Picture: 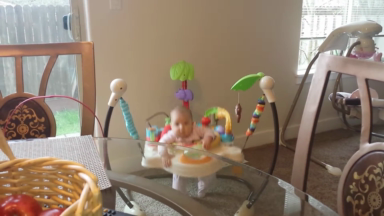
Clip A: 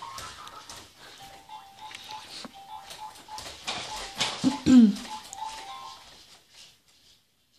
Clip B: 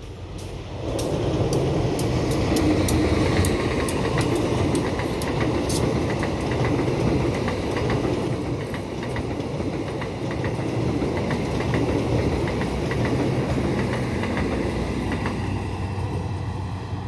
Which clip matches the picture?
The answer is A